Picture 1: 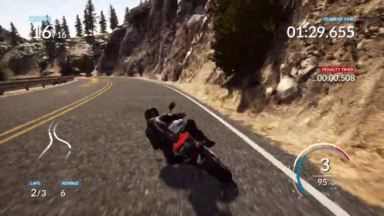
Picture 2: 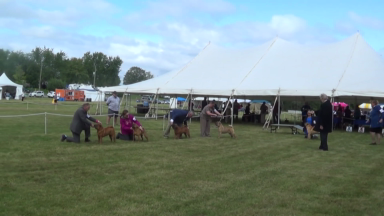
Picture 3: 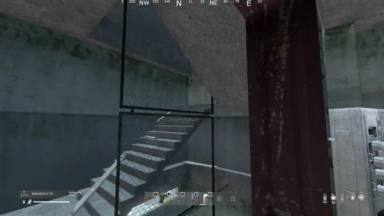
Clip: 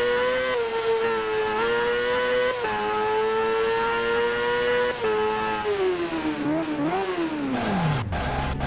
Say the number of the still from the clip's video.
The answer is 1